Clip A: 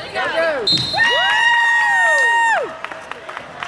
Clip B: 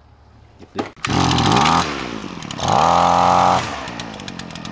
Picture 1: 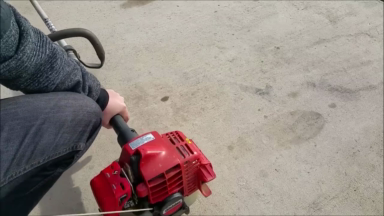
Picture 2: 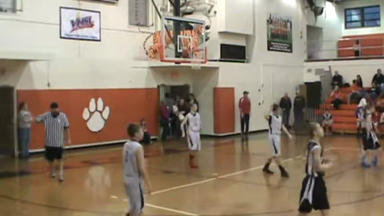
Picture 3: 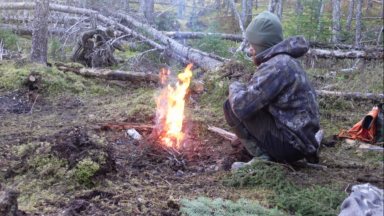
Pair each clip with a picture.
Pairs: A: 2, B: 1